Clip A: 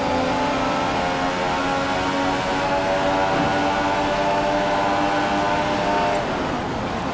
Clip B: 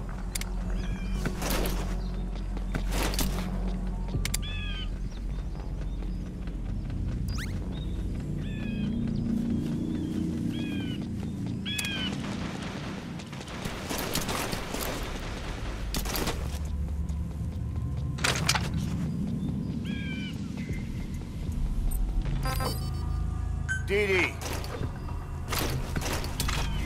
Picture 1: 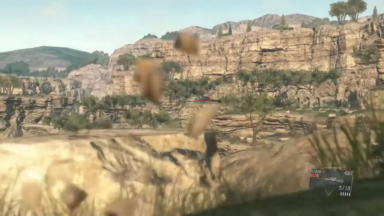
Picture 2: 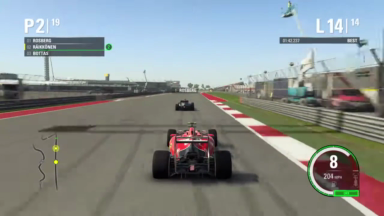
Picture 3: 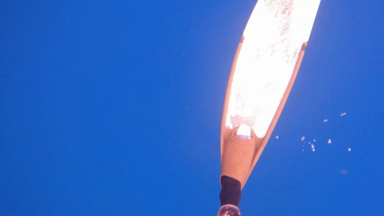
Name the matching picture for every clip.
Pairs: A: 2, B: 1